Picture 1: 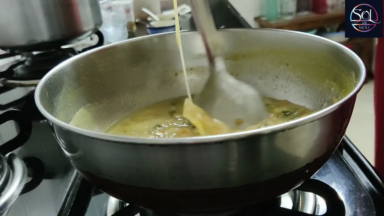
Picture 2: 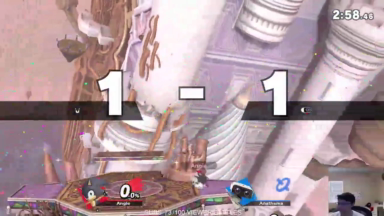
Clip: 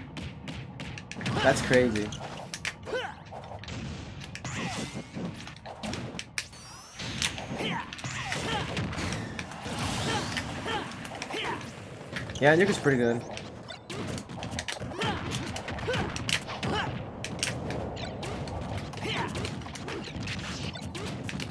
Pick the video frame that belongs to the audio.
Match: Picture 2